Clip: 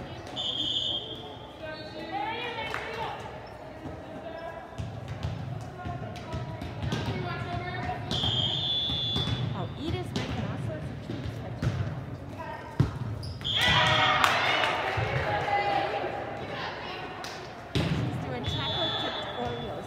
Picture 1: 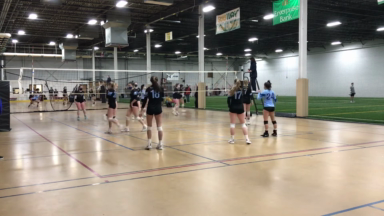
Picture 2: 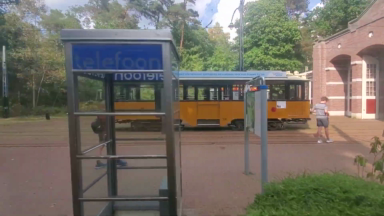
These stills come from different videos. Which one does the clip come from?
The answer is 1